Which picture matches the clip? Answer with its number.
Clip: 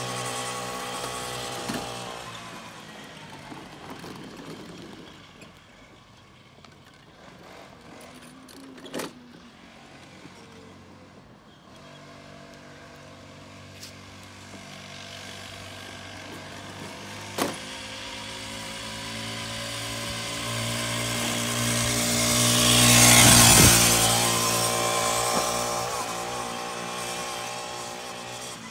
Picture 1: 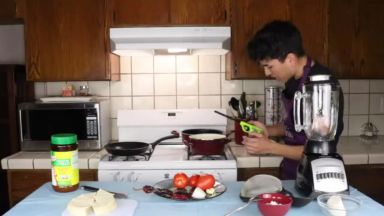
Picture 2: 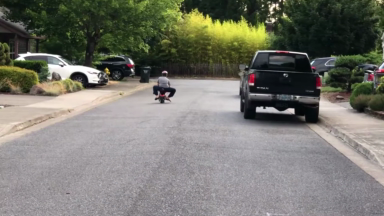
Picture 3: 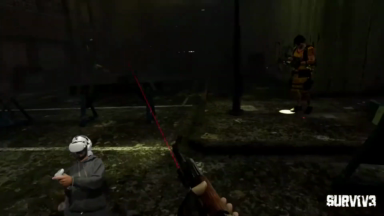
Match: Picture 2